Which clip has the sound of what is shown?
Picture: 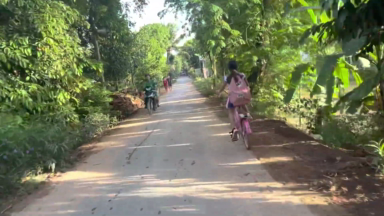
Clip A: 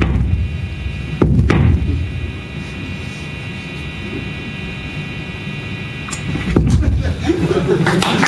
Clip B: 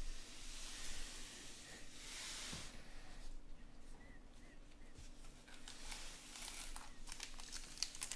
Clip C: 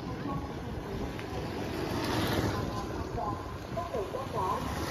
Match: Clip C